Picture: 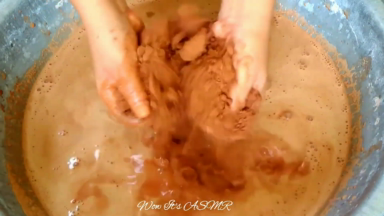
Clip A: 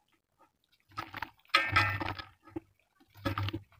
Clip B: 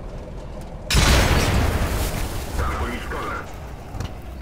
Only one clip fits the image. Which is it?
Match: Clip A